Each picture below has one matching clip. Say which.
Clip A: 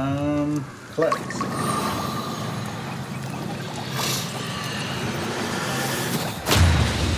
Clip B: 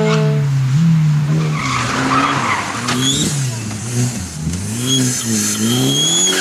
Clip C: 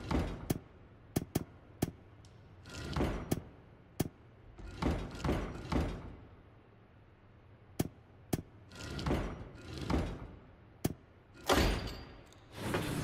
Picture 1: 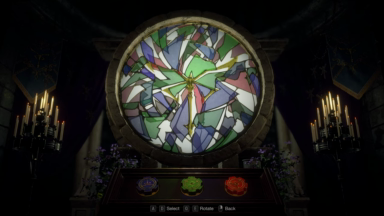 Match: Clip C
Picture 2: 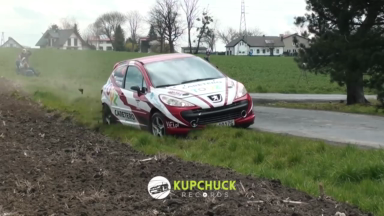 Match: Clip B